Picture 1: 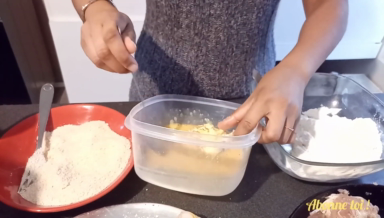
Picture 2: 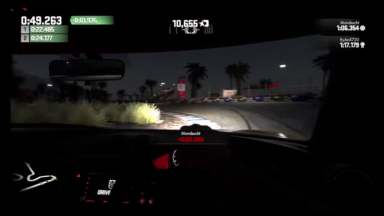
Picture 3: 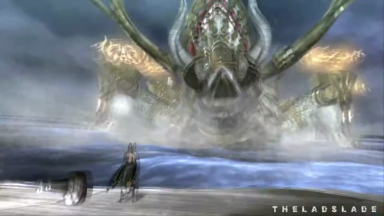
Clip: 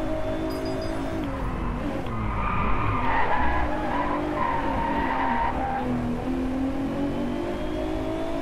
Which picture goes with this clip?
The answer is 2